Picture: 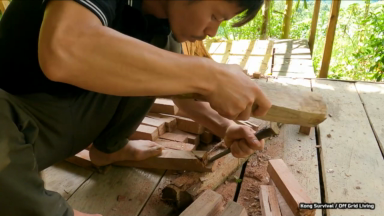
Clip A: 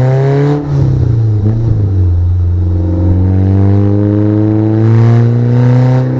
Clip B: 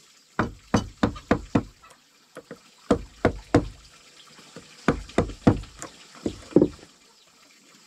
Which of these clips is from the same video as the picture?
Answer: B